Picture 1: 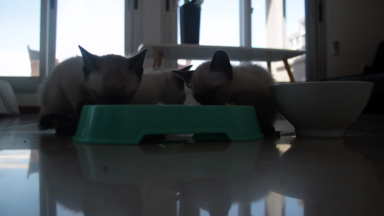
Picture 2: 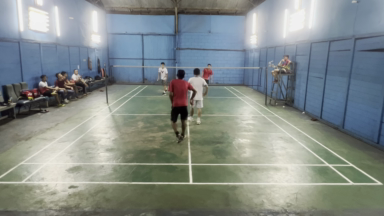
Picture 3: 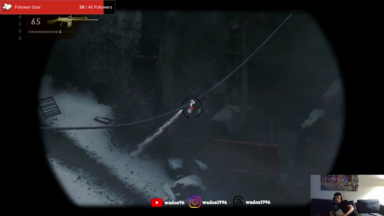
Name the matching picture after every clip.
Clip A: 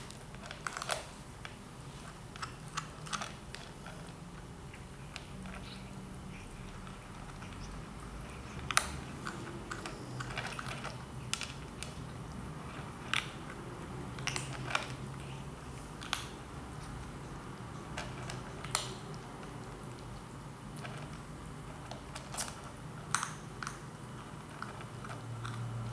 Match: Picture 1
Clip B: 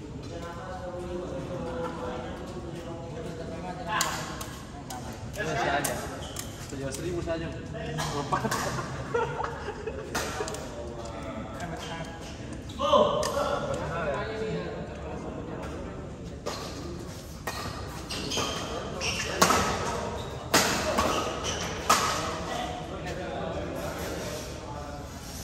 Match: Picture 2